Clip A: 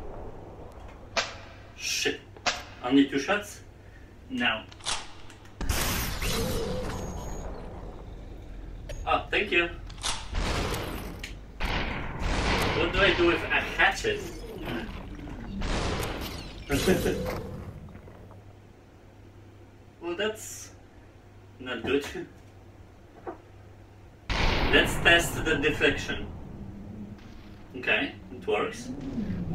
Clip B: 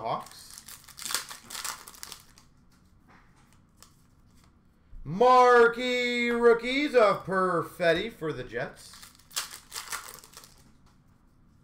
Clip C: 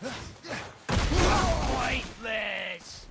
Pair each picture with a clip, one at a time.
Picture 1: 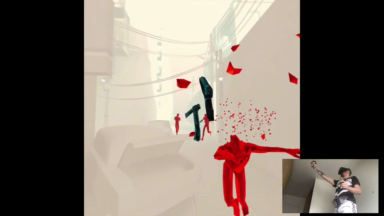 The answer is A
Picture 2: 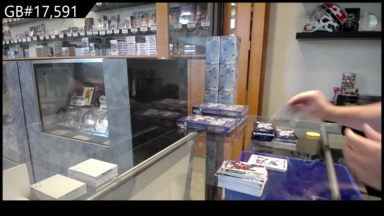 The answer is B